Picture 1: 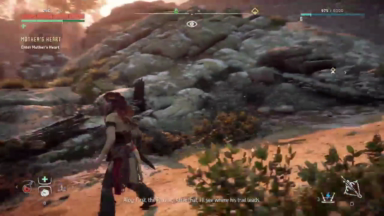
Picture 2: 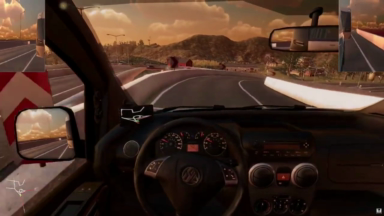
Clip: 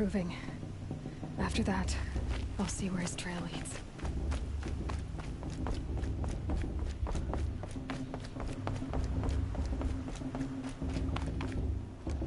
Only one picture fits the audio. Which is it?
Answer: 1